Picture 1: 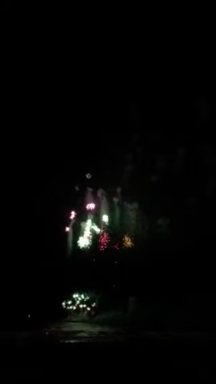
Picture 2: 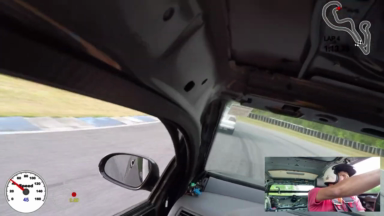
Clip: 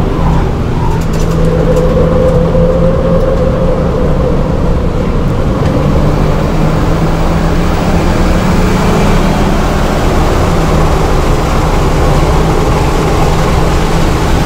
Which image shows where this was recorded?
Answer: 2